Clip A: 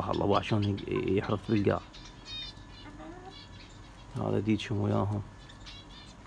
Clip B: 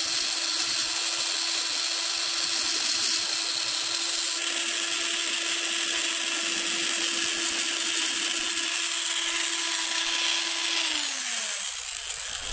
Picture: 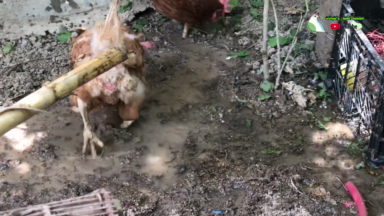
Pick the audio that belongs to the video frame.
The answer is A